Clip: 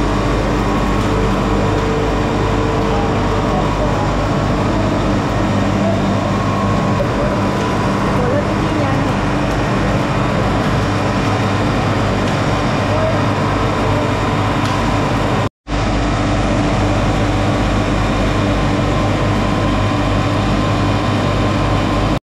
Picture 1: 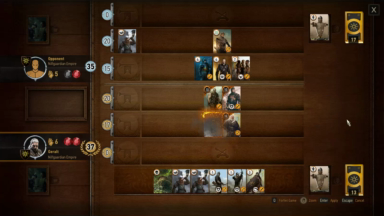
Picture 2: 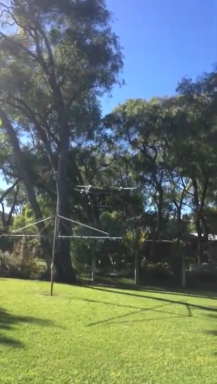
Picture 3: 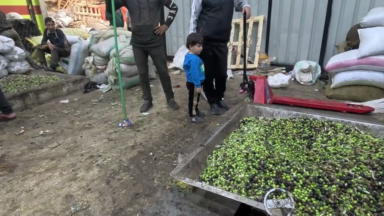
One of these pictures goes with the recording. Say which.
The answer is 3